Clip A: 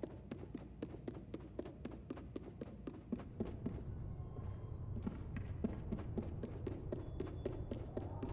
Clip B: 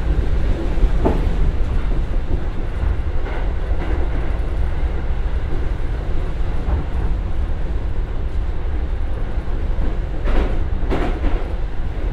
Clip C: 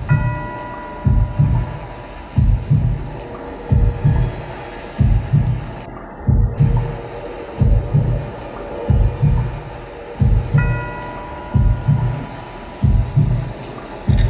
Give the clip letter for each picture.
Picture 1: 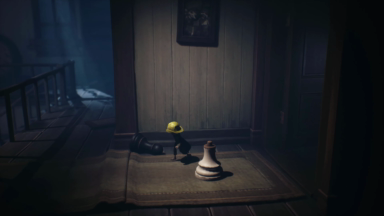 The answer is A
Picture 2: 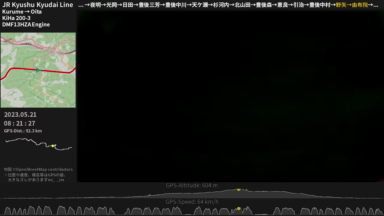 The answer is B